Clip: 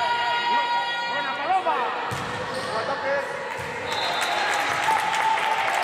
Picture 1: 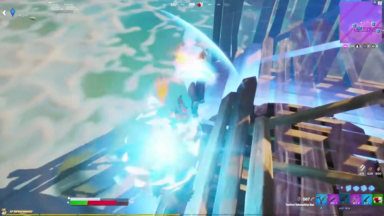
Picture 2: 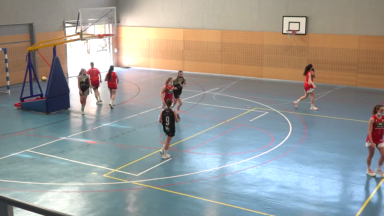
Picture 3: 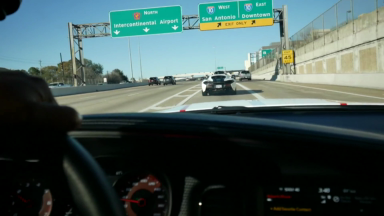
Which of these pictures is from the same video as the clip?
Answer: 2